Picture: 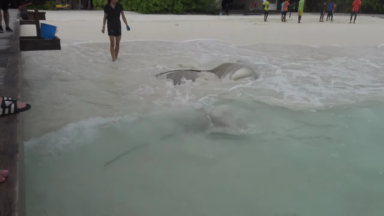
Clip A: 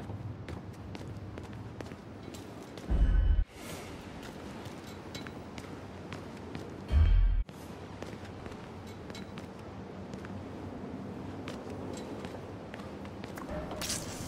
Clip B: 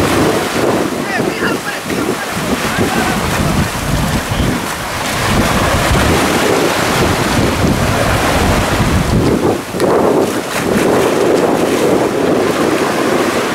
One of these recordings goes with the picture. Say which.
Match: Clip B